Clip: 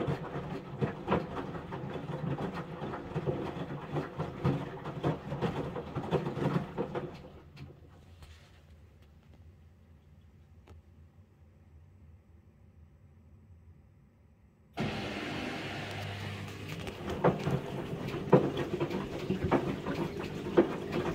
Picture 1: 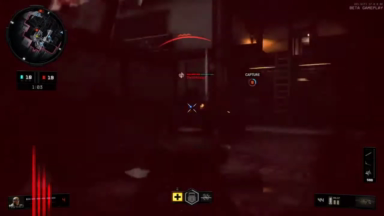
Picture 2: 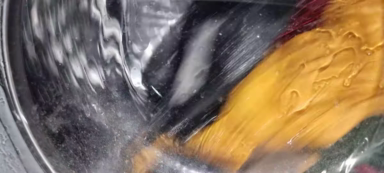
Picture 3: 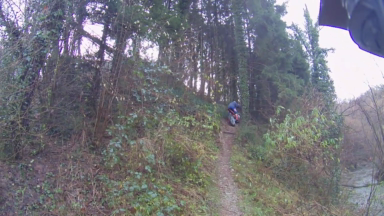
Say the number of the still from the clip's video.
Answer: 2